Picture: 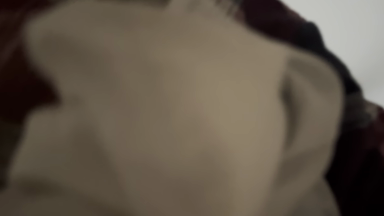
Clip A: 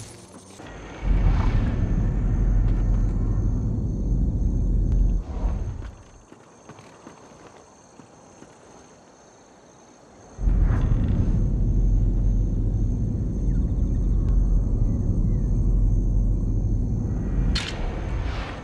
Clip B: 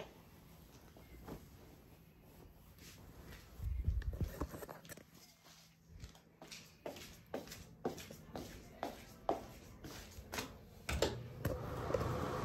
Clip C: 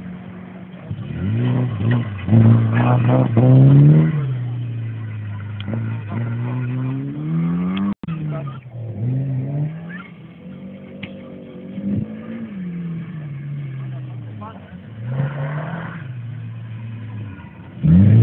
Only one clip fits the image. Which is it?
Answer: B